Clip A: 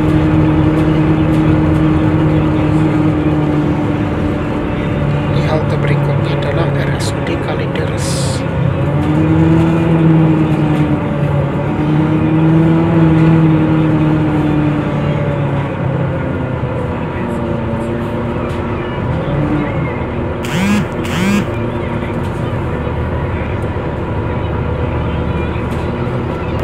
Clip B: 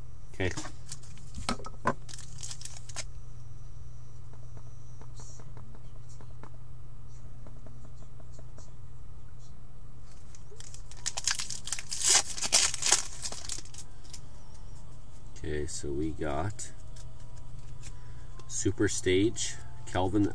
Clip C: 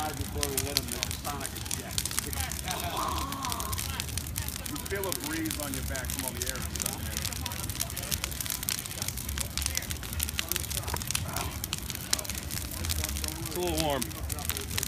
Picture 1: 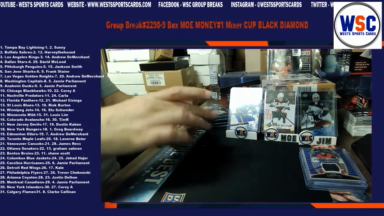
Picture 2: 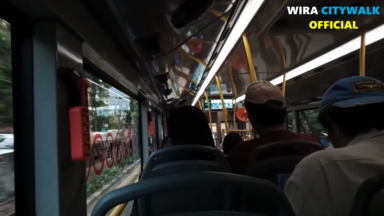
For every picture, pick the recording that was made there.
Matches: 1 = B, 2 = A